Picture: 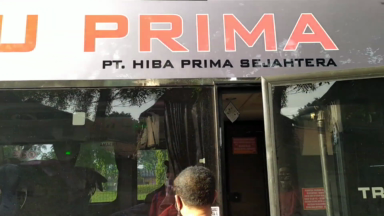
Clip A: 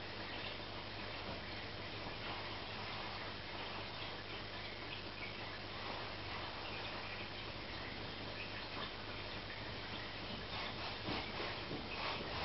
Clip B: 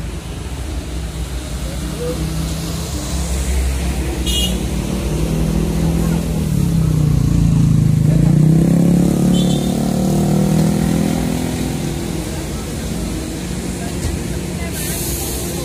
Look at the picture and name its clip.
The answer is B